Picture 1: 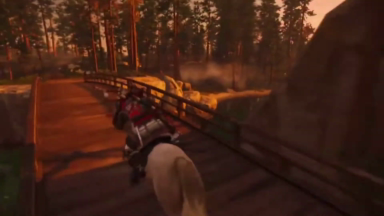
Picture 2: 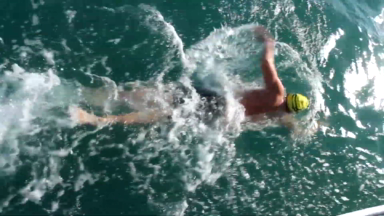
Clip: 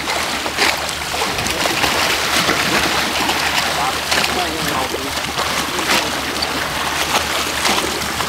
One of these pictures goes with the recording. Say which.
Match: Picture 2